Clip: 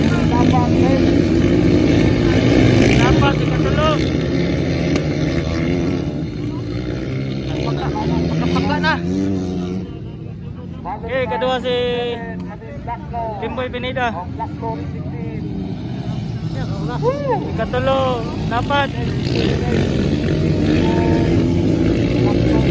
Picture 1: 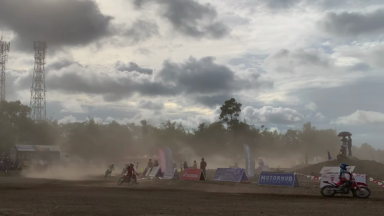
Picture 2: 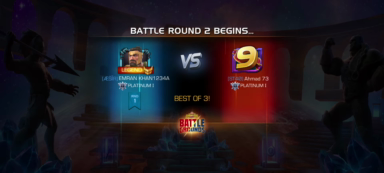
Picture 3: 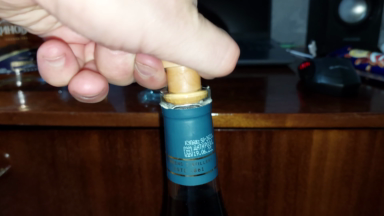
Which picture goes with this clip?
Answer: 1